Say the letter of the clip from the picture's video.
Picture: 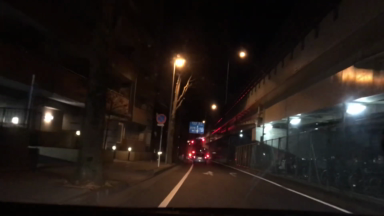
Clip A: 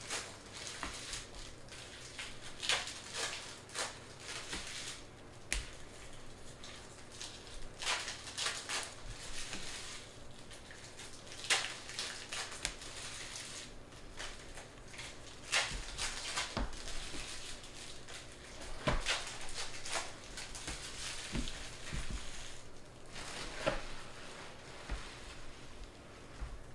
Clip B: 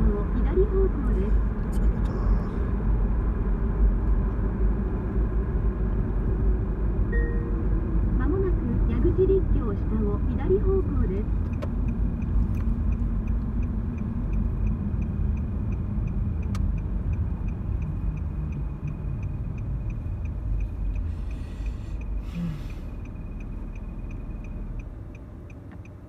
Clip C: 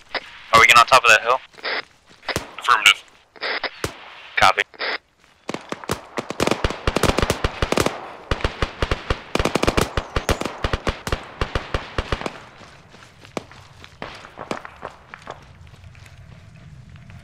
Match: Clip B